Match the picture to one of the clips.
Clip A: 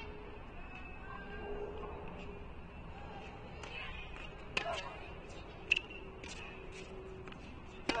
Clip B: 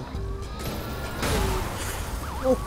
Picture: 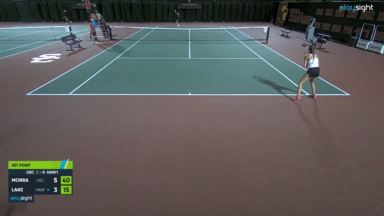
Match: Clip A